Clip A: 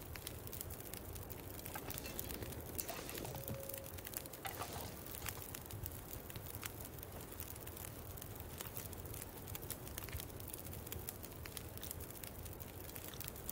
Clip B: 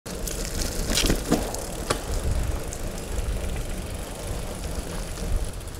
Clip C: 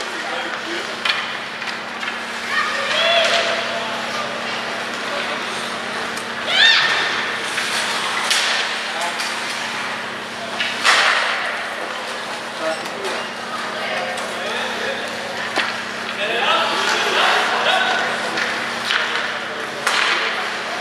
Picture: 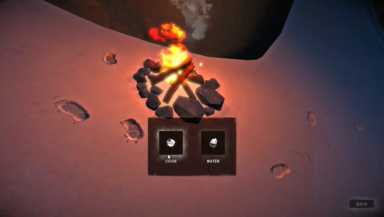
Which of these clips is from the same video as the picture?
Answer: A